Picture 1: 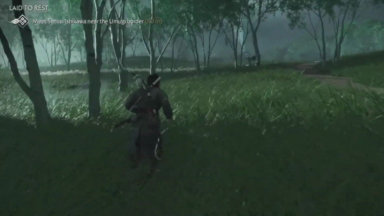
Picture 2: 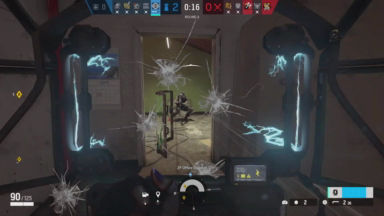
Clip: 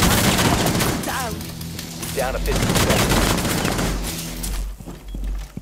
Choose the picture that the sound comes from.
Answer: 2